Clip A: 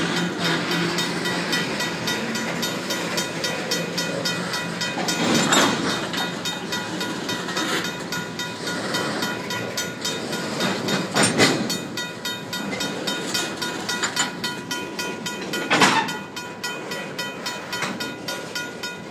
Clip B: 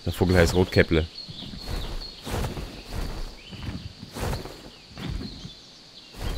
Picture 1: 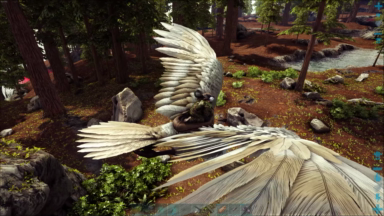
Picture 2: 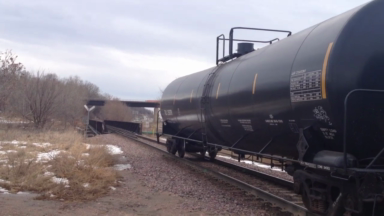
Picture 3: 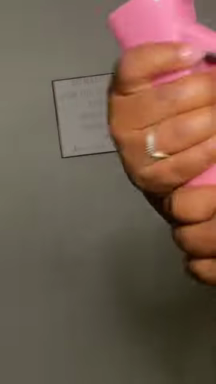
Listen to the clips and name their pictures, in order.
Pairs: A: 2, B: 1